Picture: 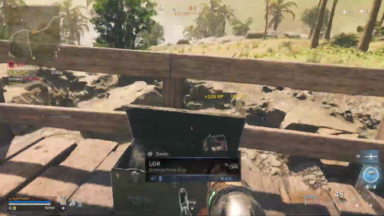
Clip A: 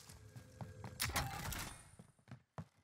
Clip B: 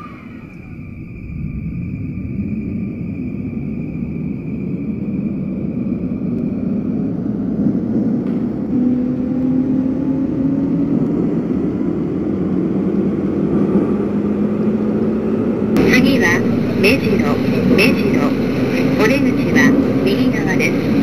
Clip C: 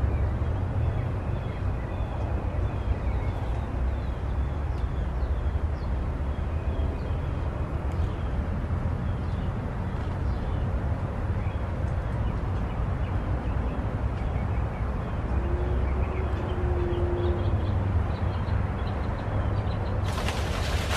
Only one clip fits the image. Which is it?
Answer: A